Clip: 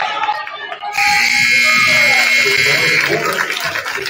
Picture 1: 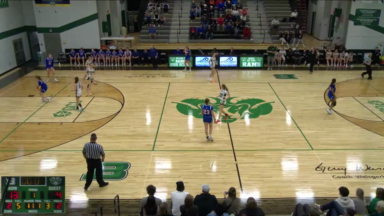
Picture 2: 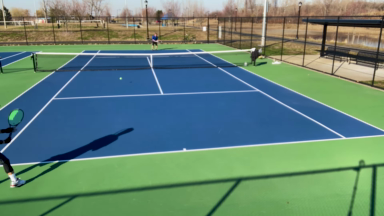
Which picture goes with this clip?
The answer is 1